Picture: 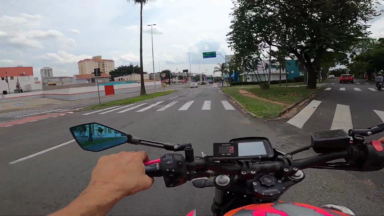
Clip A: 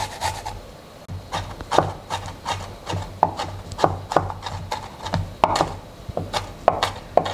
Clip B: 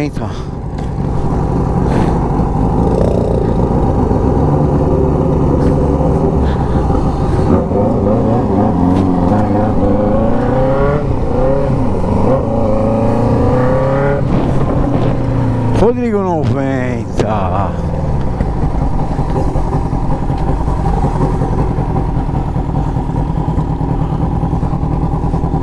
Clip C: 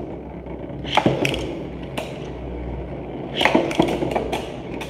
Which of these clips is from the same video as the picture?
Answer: B